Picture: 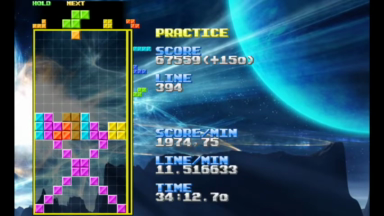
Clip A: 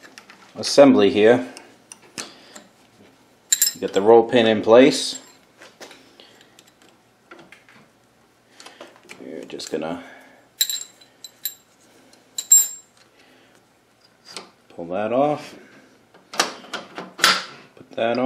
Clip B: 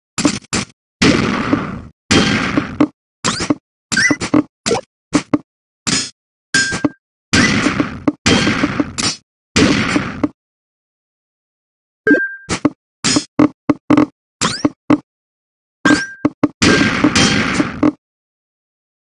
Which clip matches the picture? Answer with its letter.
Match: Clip B